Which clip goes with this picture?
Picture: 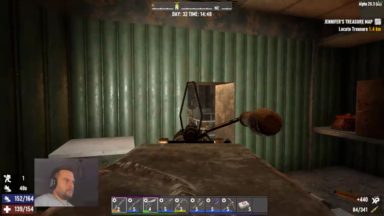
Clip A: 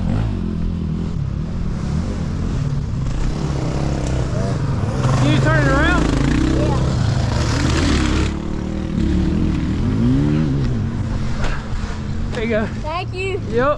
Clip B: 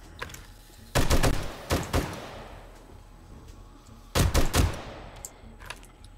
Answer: B